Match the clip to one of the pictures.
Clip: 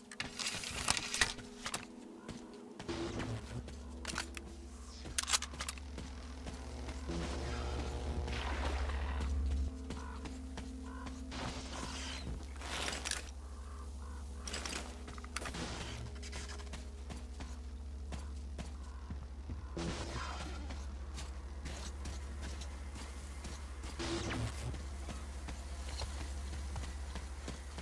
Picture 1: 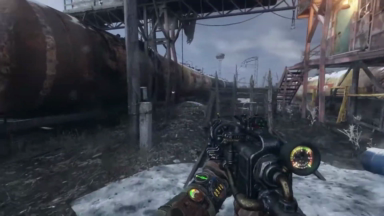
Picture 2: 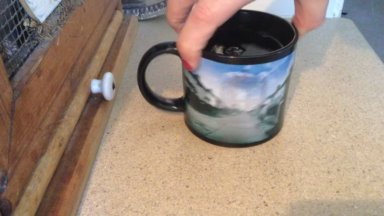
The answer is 1